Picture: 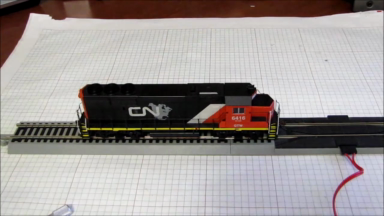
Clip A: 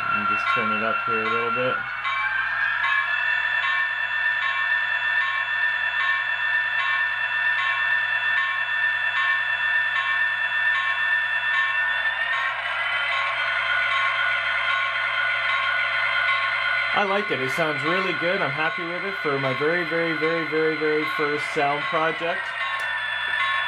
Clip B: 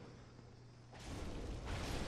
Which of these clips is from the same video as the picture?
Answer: A